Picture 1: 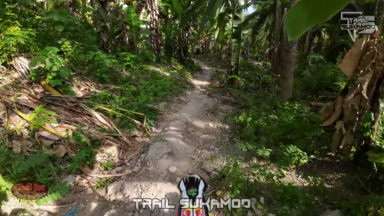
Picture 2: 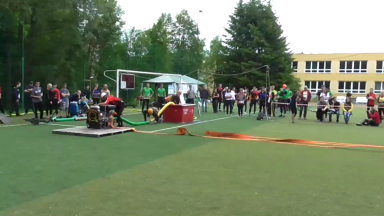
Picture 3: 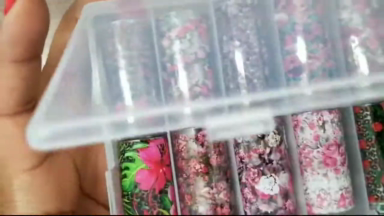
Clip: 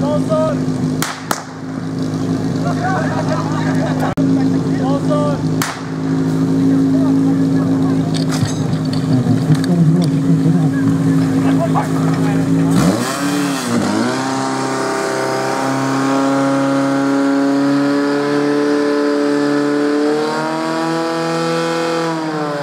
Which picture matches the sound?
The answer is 2